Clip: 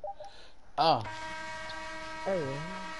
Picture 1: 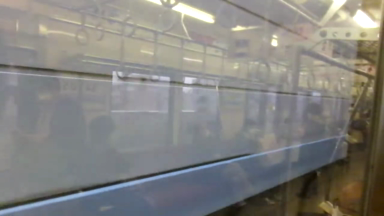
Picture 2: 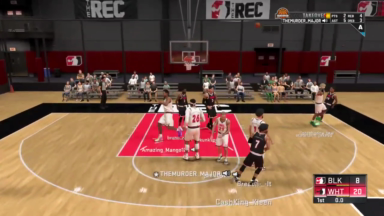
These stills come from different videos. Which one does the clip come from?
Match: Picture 2